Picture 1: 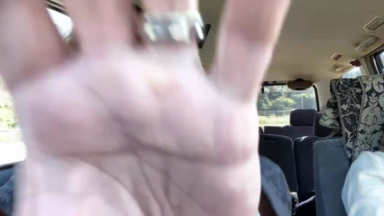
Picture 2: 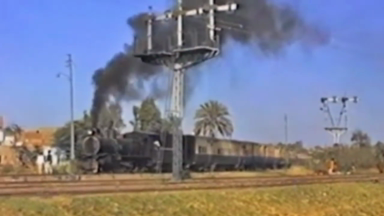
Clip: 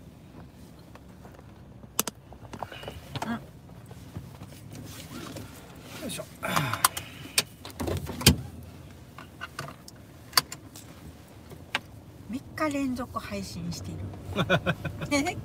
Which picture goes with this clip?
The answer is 1